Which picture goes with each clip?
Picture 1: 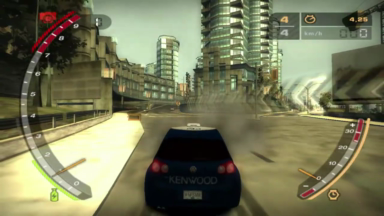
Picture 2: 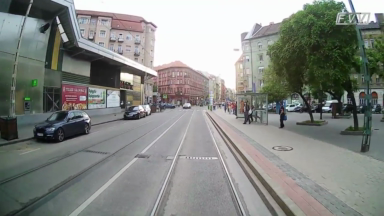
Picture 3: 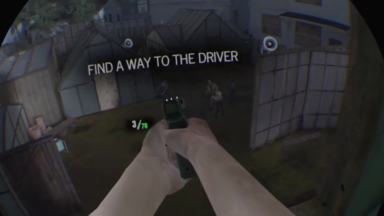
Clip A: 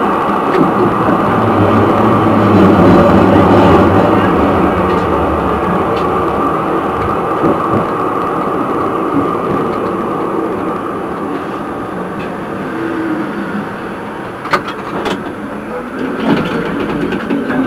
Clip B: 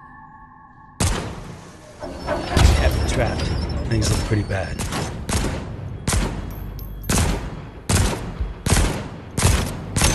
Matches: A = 2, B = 3